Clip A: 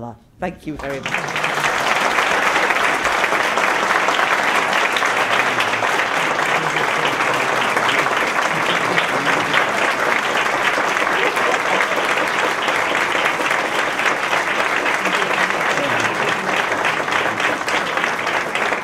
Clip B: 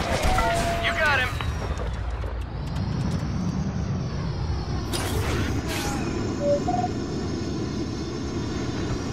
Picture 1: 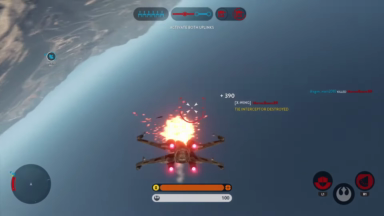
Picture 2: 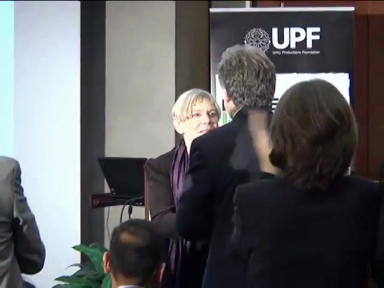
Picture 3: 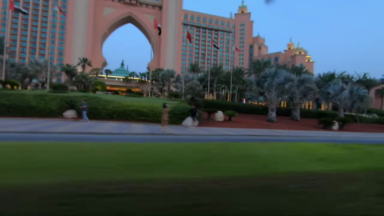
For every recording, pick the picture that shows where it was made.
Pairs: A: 2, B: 1